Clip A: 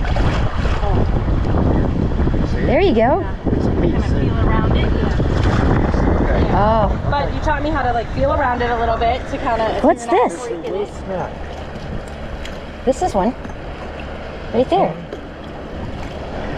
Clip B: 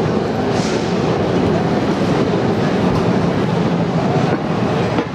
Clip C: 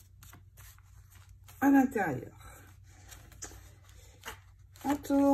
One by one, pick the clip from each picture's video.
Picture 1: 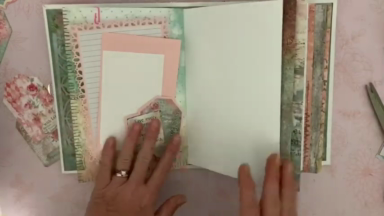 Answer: C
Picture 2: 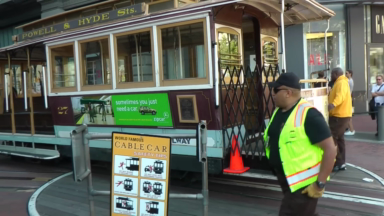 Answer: B